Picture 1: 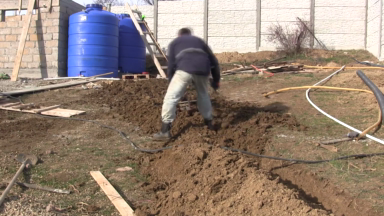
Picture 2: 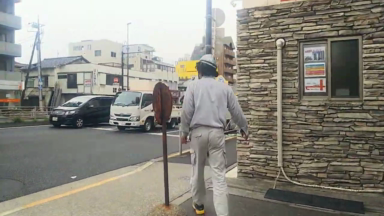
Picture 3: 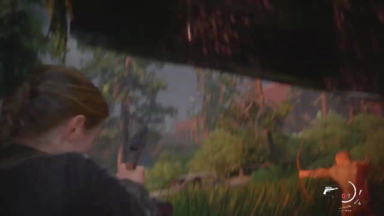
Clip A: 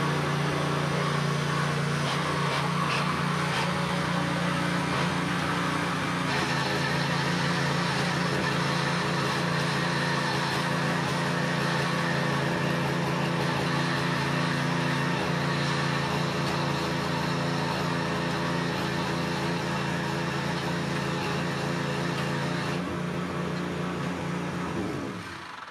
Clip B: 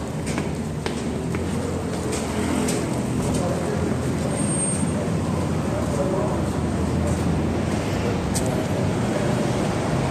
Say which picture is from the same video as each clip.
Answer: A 1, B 2